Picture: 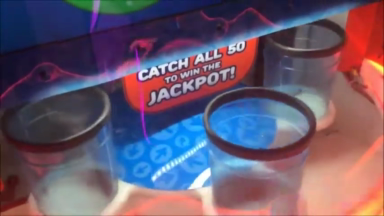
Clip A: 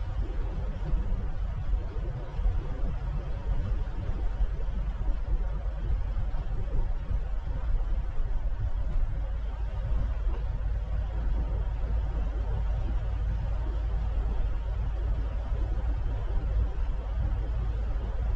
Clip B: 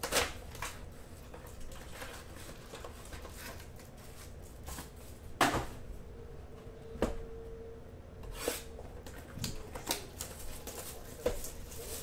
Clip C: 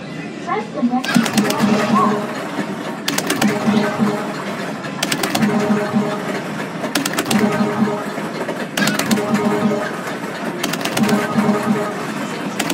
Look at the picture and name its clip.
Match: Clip C